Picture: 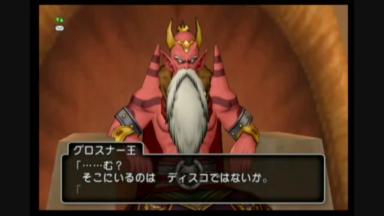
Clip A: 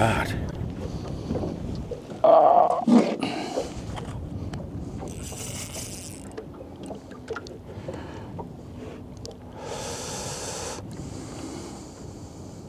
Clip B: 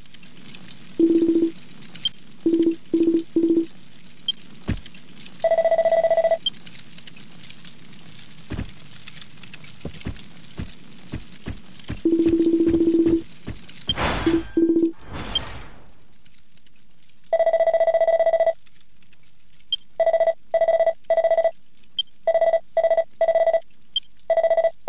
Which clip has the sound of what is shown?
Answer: B